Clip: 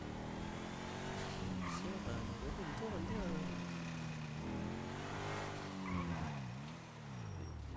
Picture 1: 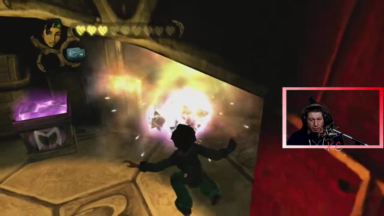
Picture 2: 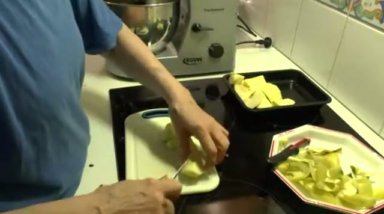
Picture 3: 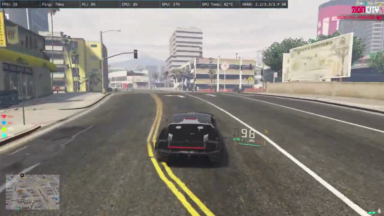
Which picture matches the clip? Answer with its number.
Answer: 3